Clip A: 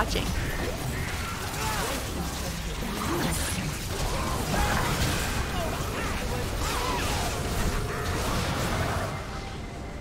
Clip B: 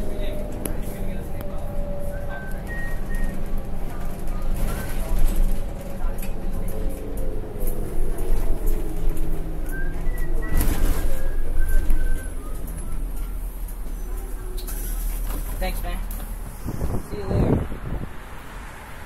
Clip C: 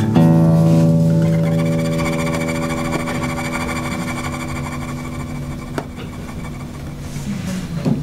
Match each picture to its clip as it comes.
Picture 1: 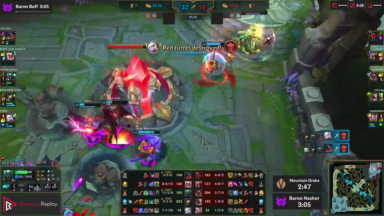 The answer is A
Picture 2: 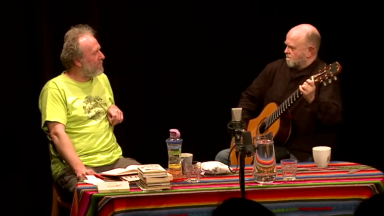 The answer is C